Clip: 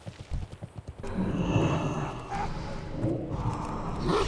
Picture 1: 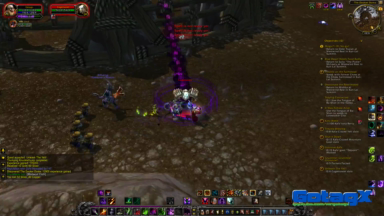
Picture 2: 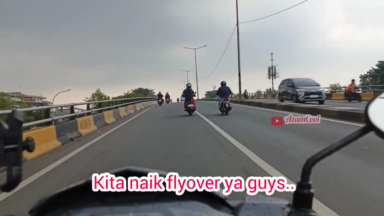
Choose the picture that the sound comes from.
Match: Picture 1